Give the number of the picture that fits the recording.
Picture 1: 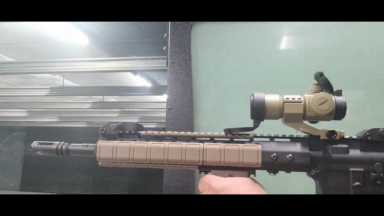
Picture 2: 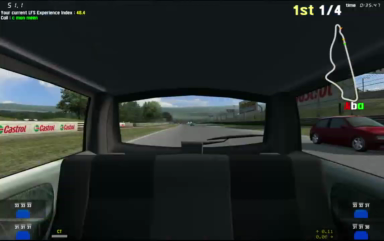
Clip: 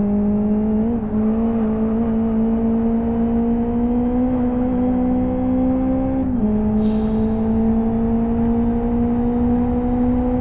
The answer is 2